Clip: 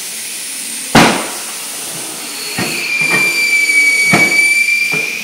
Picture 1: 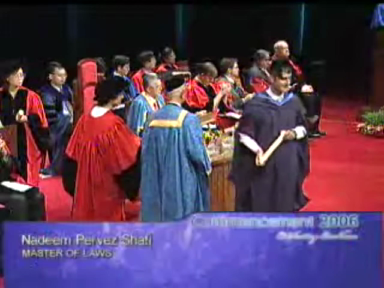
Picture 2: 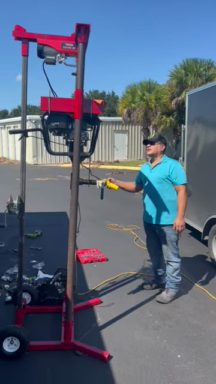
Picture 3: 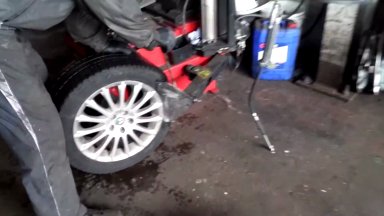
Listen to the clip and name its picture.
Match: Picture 3